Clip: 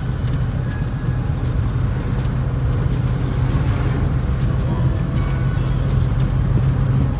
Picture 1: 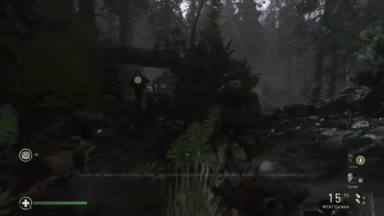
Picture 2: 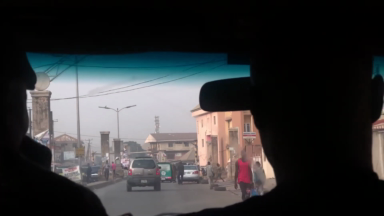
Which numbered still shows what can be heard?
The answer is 2